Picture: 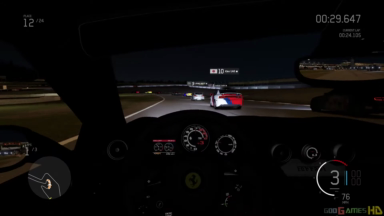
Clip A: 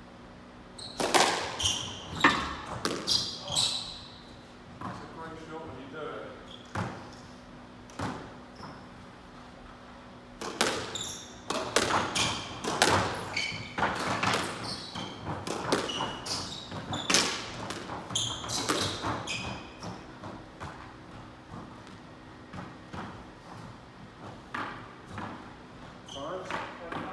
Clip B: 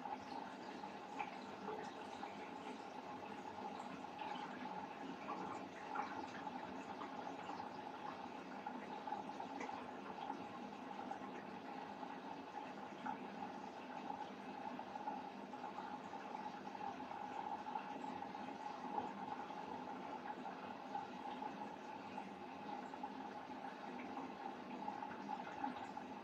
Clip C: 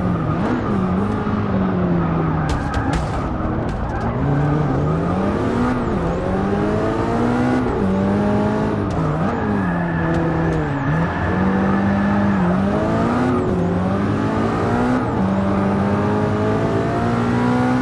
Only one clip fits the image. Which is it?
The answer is C